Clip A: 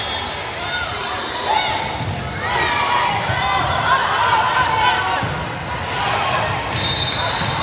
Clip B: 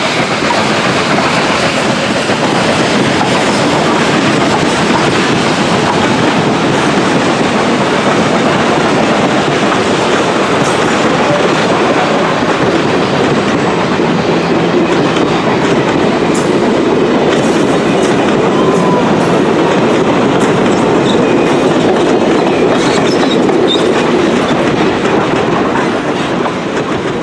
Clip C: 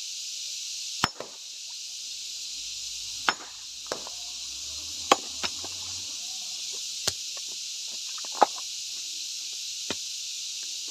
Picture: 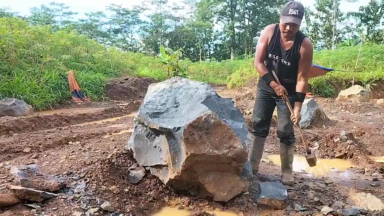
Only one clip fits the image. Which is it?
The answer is C